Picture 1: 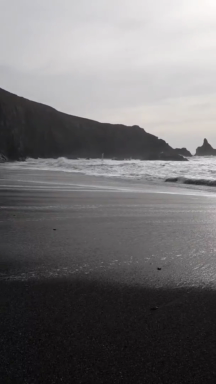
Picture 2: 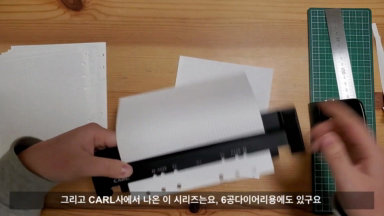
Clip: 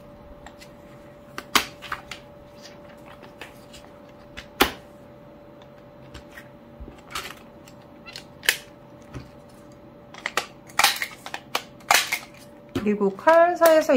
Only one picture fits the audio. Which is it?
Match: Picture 2